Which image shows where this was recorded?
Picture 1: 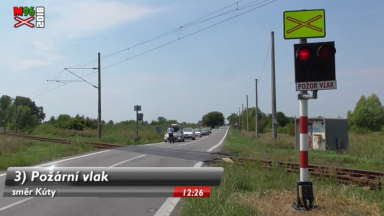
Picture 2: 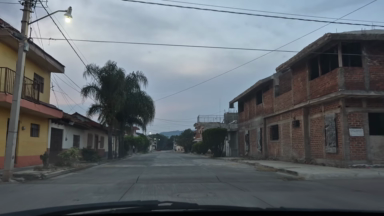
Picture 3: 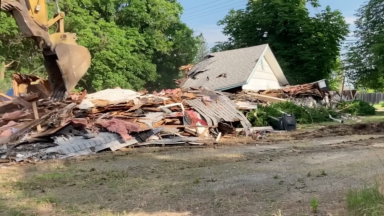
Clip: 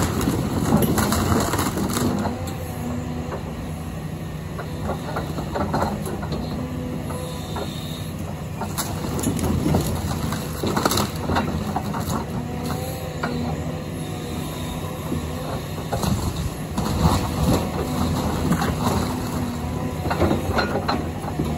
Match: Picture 3